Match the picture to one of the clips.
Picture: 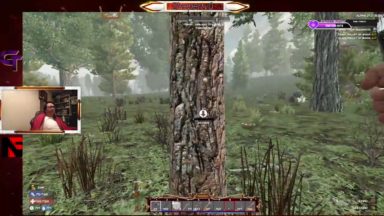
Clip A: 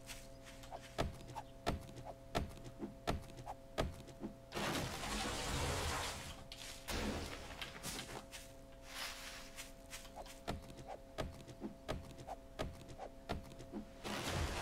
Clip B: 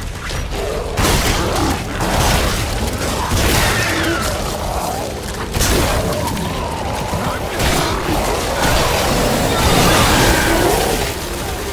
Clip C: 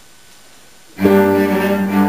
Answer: A